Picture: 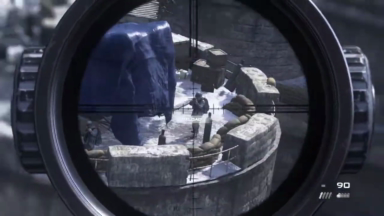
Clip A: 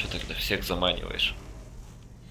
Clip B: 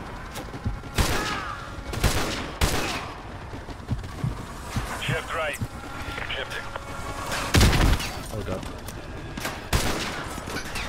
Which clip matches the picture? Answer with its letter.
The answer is B